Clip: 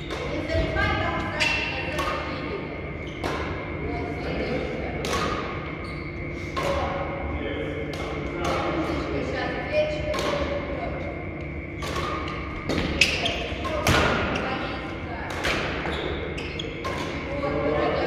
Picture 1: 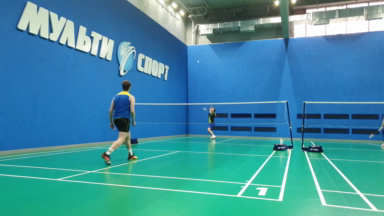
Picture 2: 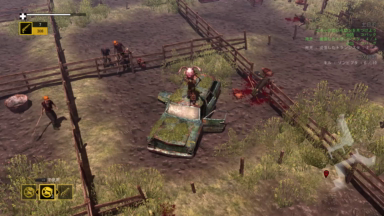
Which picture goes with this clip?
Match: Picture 1